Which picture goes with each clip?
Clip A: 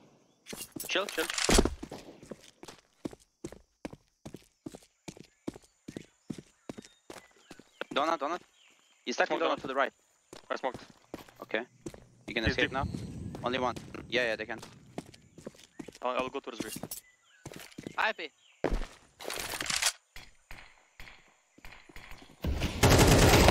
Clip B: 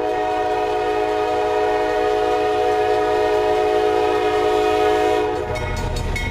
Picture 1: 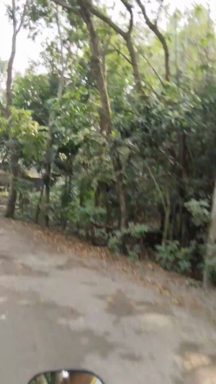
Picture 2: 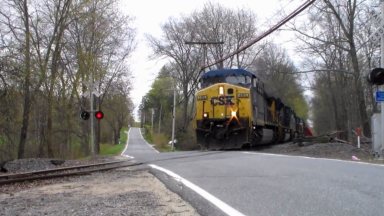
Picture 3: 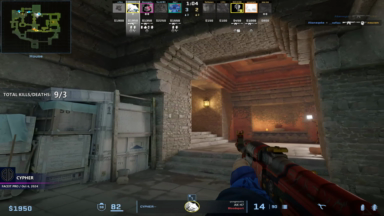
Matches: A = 3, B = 2